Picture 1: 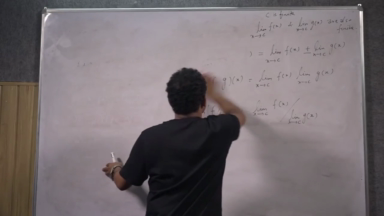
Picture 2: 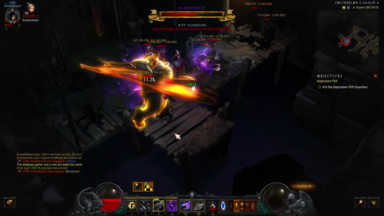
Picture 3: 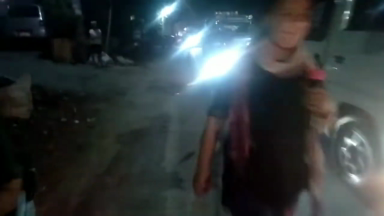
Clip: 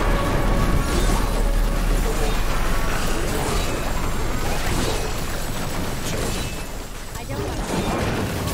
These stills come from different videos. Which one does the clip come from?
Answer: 2